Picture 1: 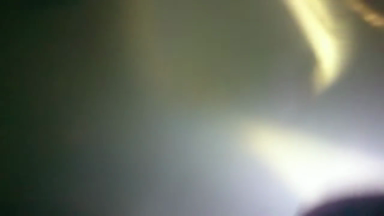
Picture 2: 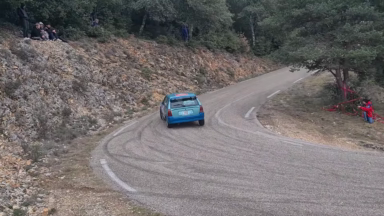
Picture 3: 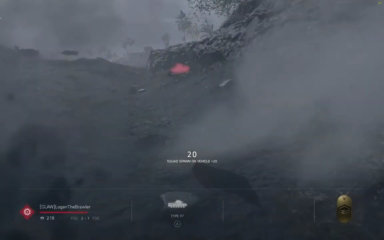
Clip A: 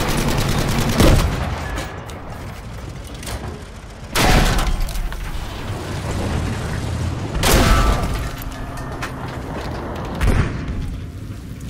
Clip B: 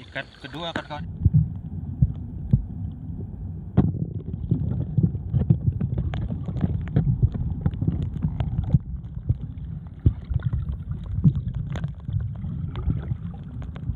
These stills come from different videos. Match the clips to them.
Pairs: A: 3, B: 1